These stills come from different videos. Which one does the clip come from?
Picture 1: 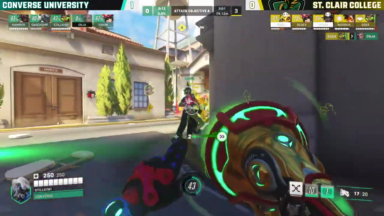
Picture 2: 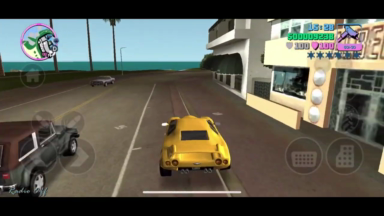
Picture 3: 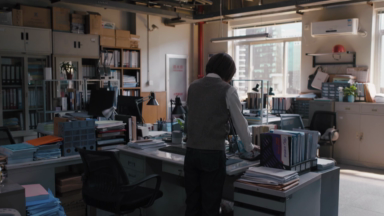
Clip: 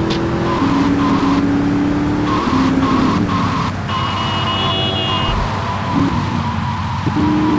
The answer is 2